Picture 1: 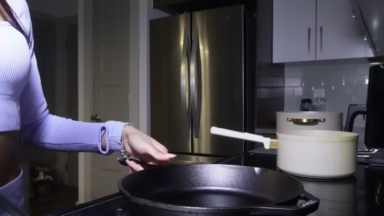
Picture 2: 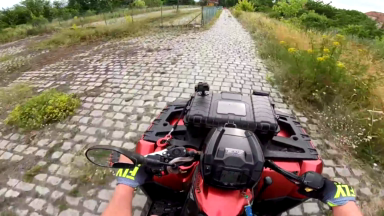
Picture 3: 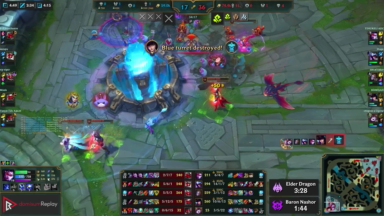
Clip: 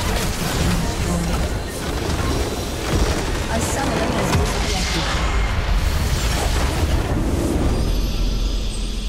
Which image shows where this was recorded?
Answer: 3